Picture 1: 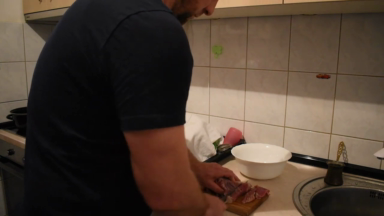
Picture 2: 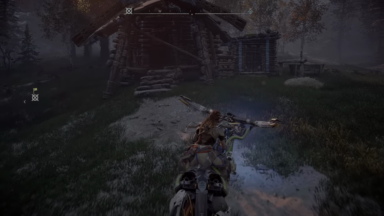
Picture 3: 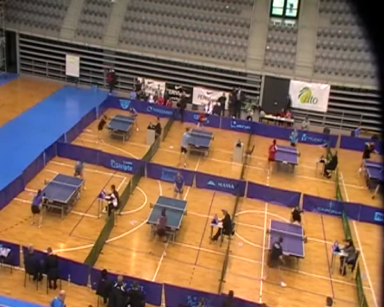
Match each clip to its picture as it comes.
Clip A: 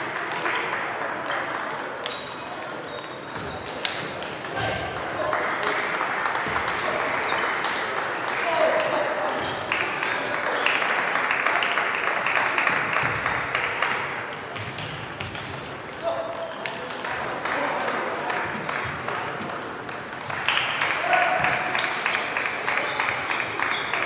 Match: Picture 3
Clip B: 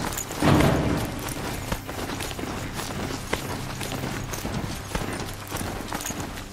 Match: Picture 2